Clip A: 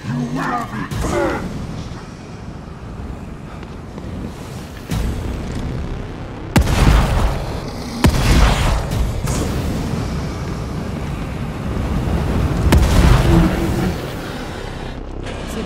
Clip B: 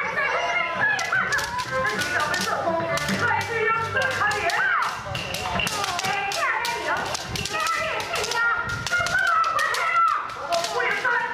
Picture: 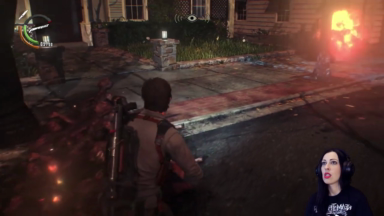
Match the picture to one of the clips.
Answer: A